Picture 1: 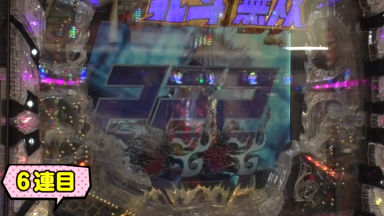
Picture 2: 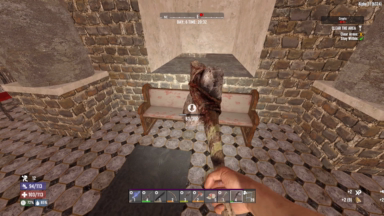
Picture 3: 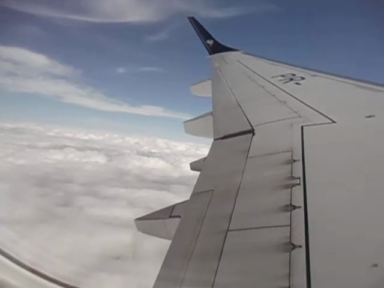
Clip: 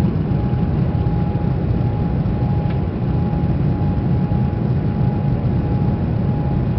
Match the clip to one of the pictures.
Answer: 3